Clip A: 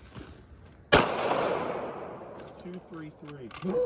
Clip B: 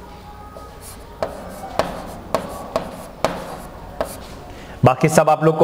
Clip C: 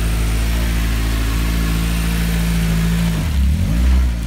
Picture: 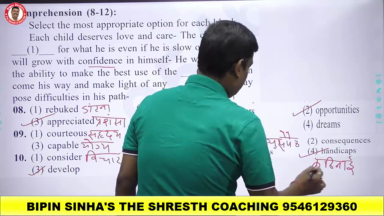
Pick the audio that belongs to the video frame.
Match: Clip B